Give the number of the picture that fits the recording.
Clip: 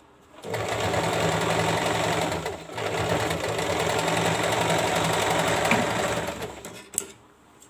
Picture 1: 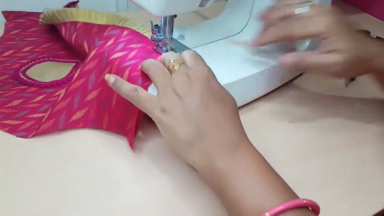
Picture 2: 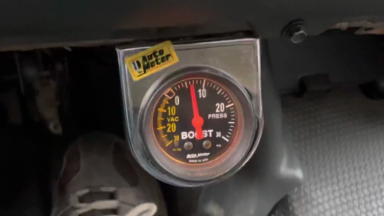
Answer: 1